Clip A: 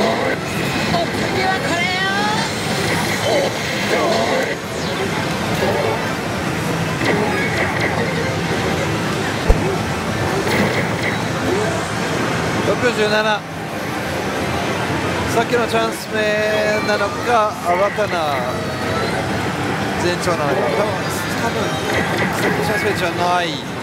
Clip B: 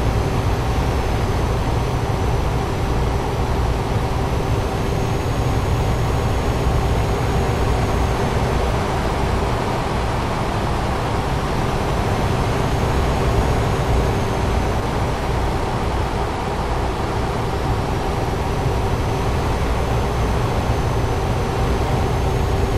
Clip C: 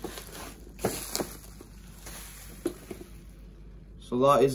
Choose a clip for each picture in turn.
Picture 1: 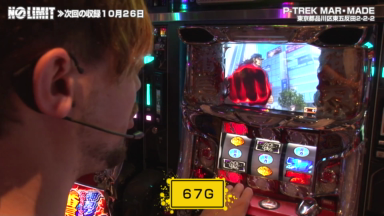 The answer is A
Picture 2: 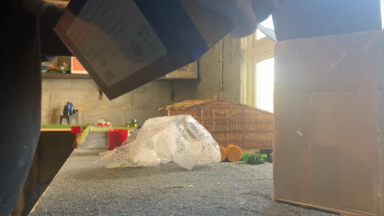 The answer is C